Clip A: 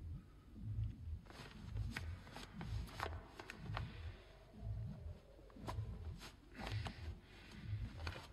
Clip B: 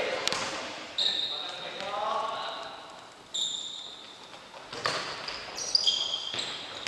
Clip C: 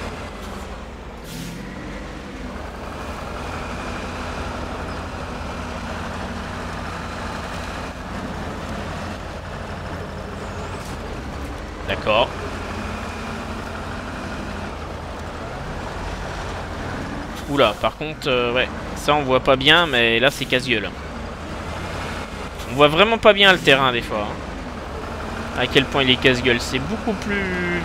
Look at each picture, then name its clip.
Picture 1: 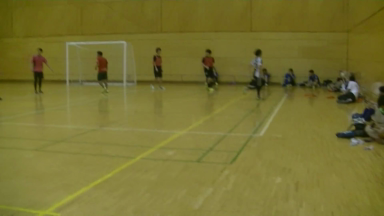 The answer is B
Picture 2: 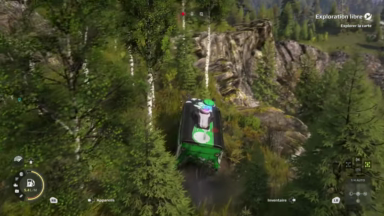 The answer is C